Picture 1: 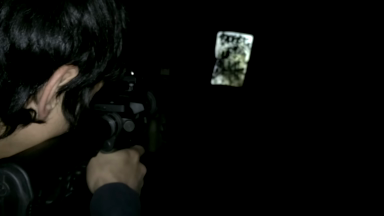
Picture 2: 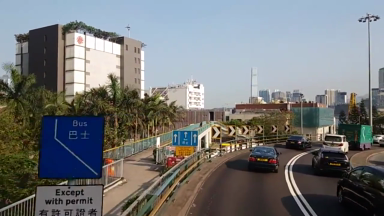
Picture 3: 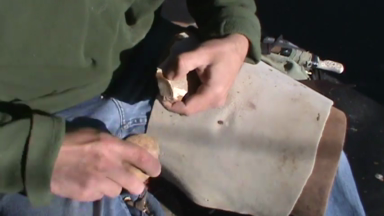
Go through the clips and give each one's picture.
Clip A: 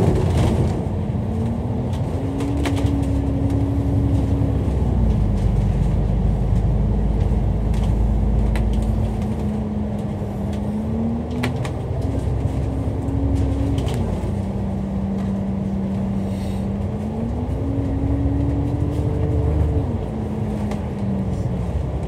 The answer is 2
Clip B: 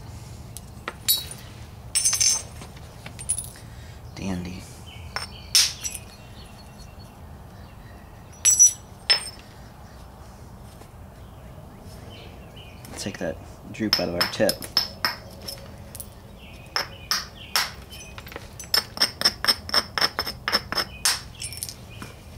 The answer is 3